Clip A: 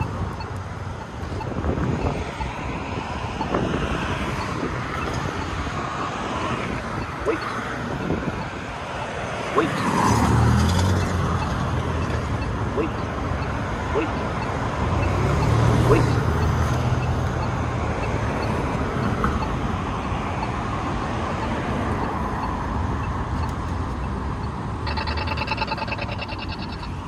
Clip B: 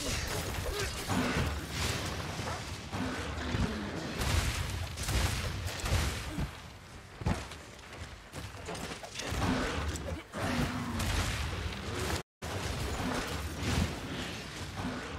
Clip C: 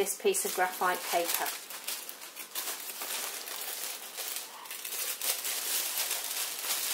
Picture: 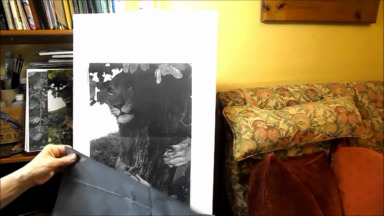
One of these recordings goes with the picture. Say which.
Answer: C